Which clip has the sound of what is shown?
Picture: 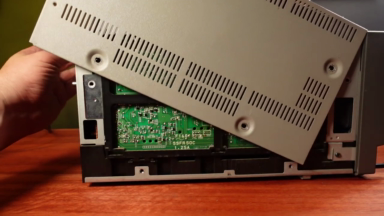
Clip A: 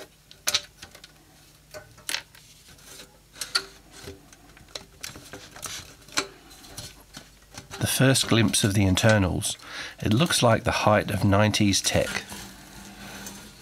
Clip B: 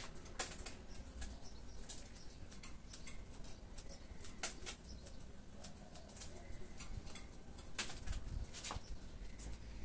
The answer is A